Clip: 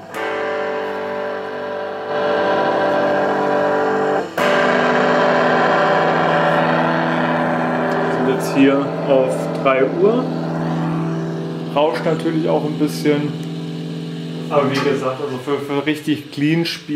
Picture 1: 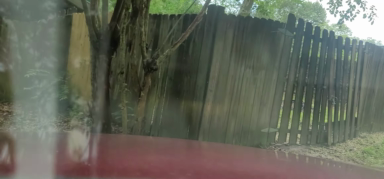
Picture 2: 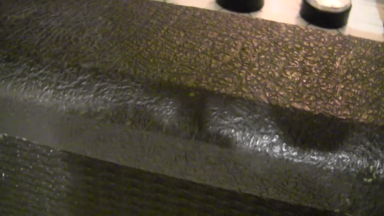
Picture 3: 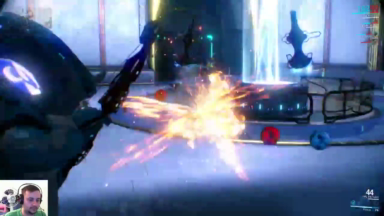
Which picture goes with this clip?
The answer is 2